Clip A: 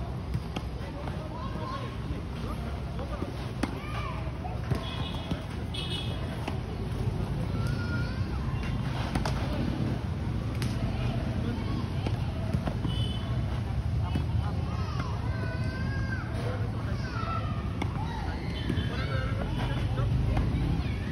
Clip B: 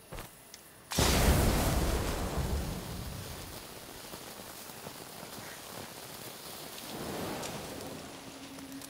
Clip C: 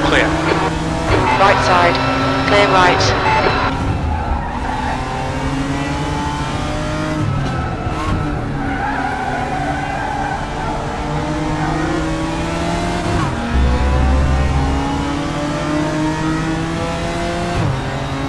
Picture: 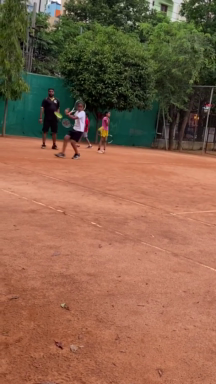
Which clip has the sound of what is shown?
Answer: A